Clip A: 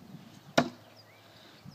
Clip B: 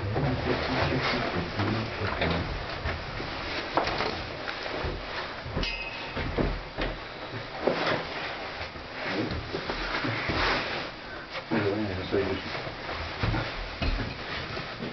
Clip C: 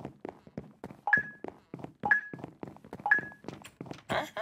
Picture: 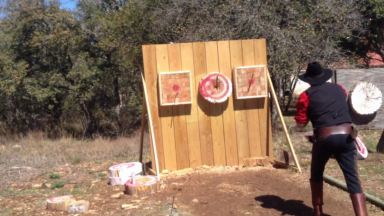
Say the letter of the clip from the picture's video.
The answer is A